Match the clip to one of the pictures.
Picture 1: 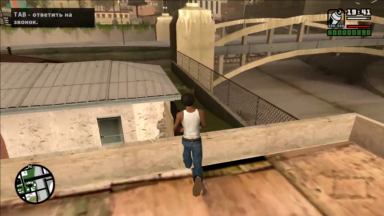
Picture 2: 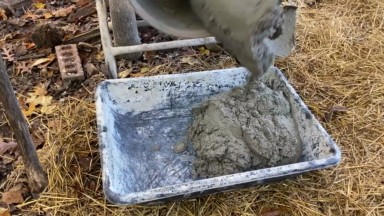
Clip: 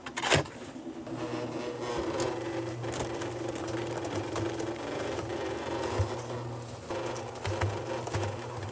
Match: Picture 2